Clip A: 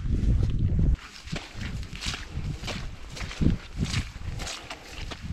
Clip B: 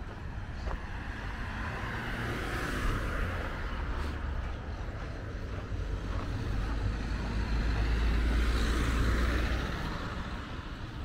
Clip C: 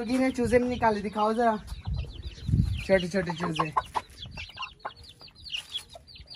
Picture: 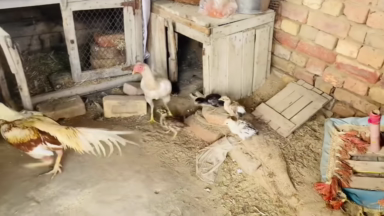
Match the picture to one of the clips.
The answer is C